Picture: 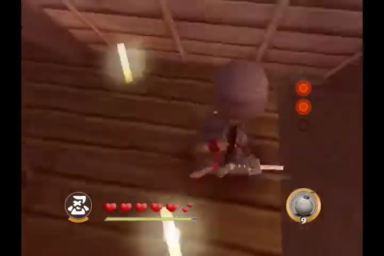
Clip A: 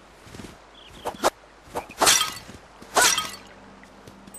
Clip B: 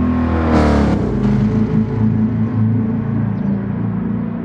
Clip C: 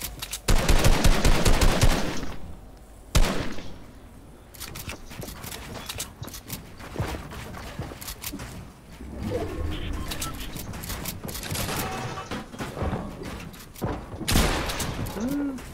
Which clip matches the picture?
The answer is A